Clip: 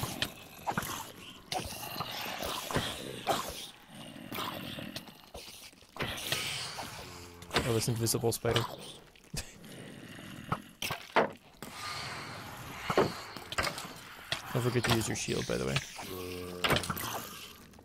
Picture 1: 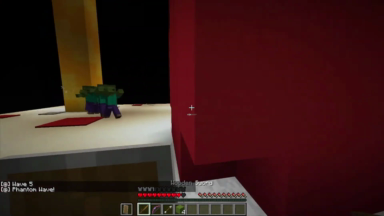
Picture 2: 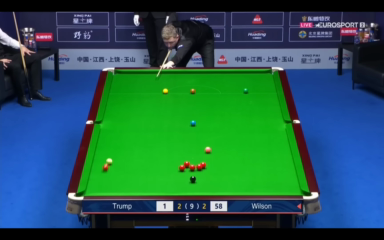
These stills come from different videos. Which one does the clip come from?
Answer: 1